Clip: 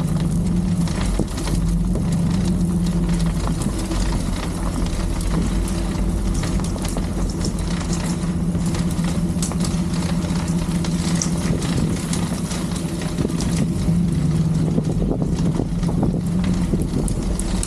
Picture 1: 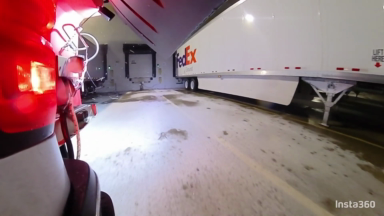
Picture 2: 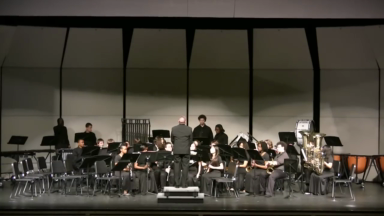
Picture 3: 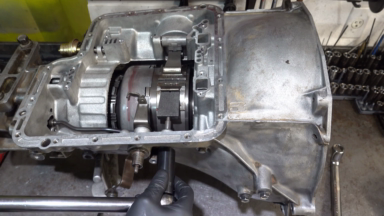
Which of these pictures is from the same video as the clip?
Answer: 1